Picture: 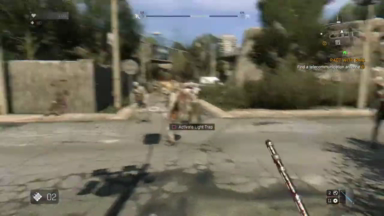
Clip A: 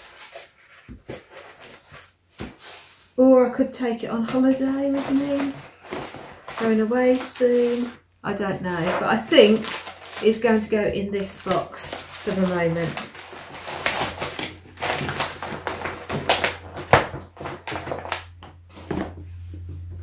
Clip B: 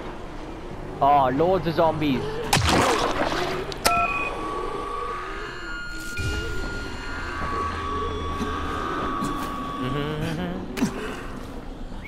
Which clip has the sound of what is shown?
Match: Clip B